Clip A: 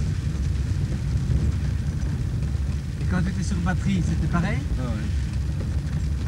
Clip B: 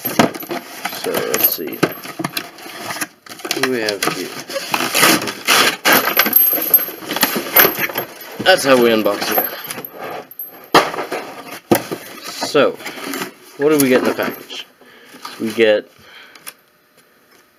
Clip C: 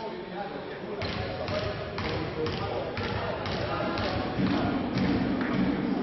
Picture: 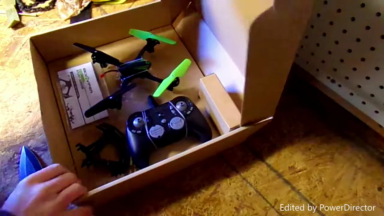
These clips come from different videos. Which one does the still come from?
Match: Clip B